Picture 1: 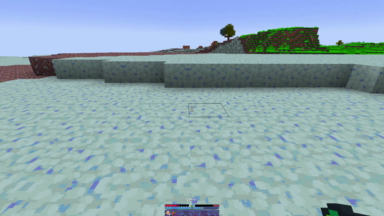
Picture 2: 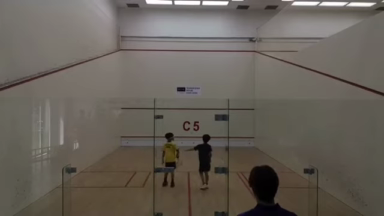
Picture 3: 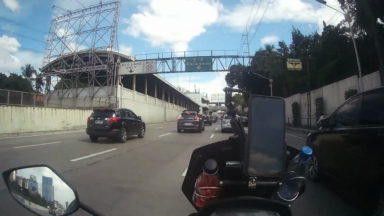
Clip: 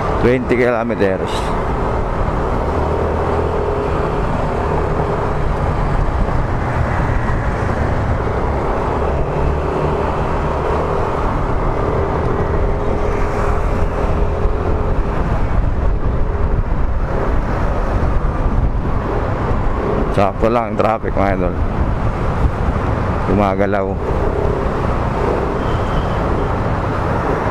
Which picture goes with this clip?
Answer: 3